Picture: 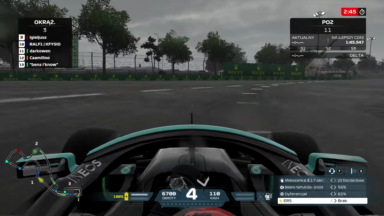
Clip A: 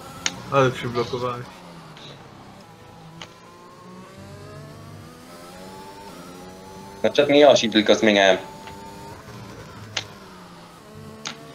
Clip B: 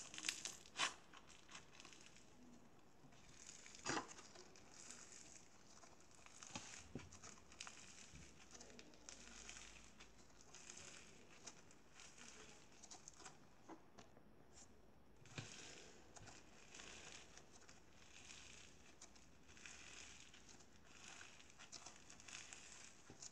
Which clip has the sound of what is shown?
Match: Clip A